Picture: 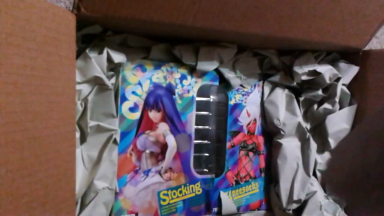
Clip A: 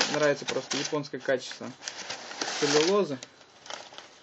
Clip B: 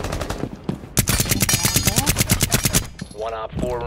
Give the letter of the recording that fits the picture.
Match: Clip A